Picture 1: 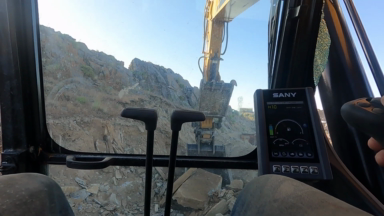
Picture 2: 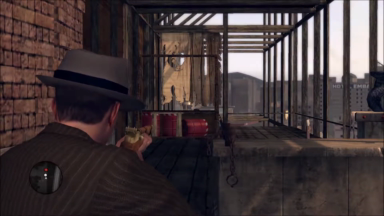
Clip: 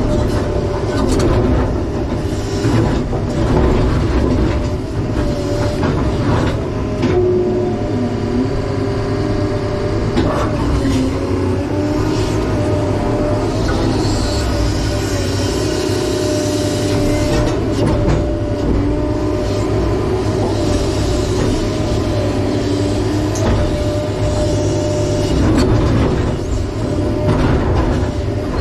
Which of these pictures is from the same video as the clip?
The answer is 1